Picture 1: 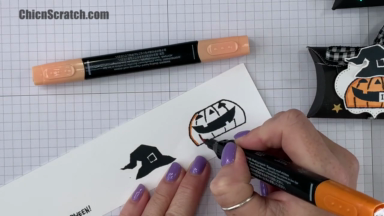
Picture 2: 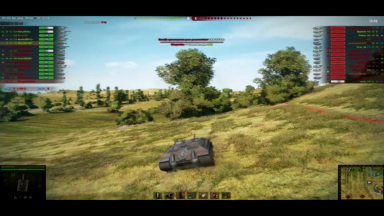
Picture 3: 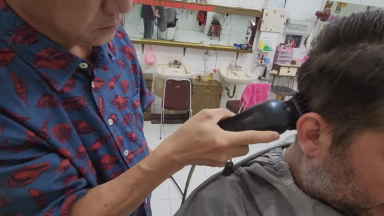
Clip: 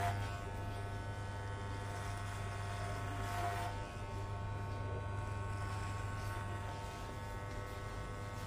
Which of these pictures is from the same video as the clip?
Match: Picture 3